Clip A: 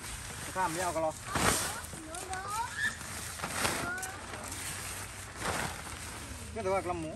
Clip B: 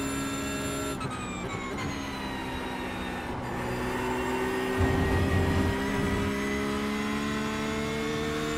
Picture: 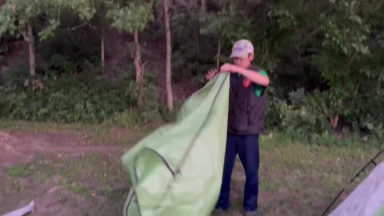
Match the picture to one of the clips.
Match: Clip A